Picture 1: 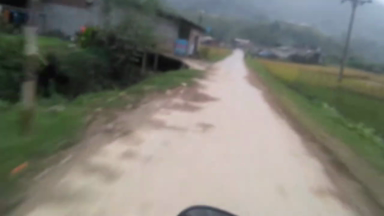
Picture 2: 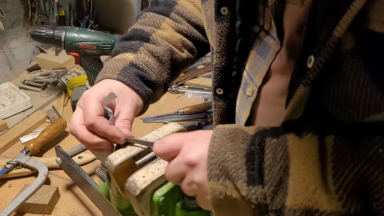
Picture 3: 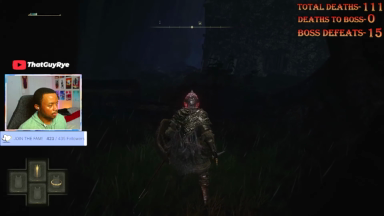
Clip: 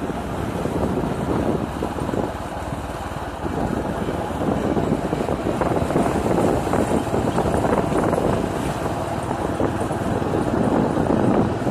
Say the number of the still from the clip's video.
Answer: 1